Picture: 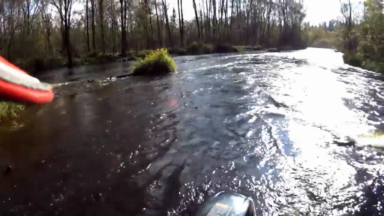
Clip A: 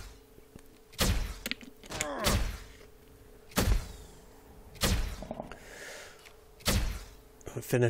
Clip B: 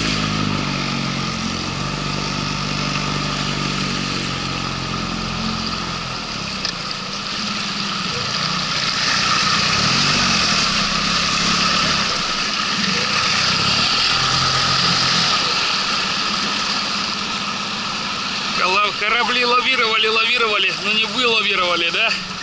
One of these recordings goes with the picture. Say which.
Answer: B